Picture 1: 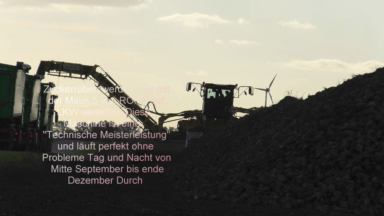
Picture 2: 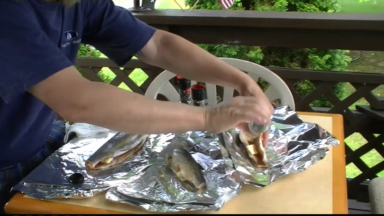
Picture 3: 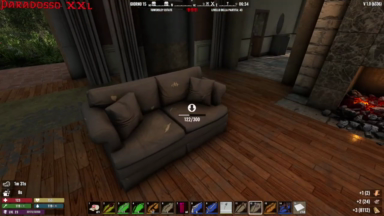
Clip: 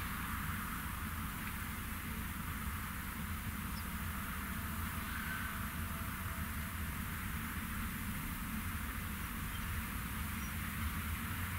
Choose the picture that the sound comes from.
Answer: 1